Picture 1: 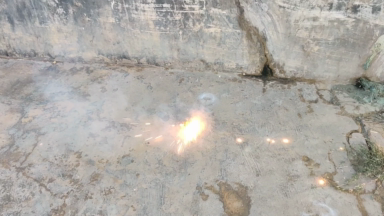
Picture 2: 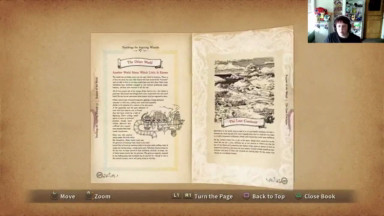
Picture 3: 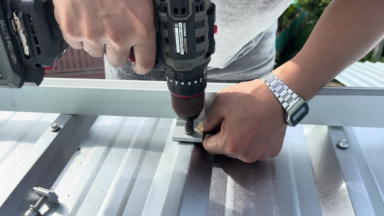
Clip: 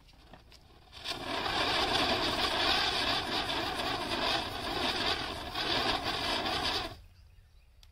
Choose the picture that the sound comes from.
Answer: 1